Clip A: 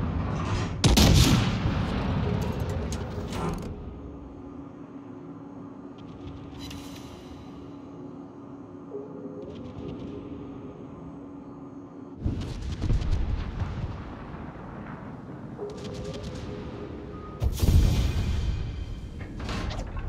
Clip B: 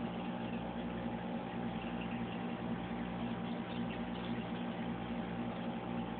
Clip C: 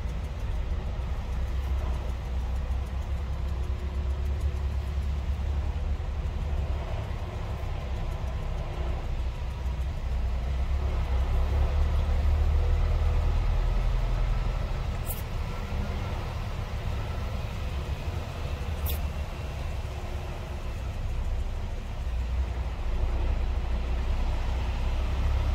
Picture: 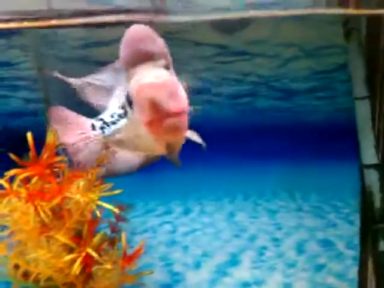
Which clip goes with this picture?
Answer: B